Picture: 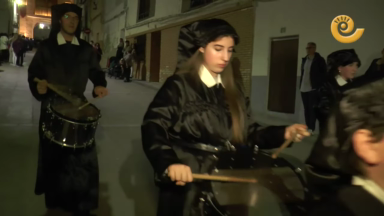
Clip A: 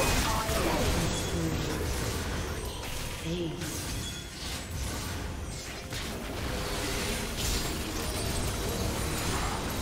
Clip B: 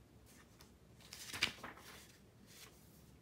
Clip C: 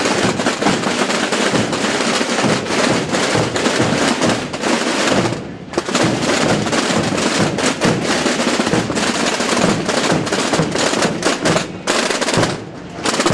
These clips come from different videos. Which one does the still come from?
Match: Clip C